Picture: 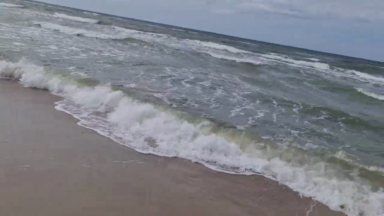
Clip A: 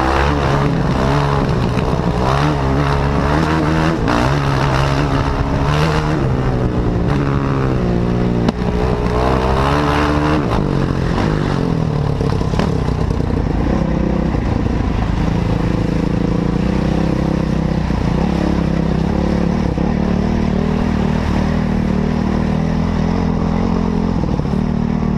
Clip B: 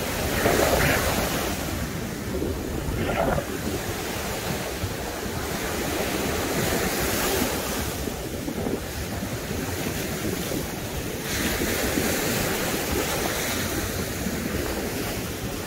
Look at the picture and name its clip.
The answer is B